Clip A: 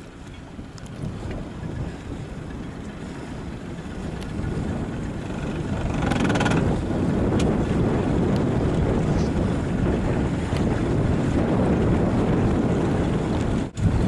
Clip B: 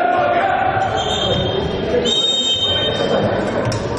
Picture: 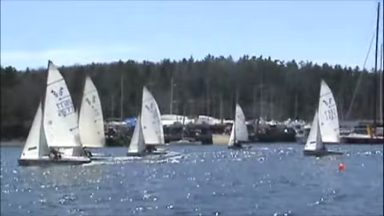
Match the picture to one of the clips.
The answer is A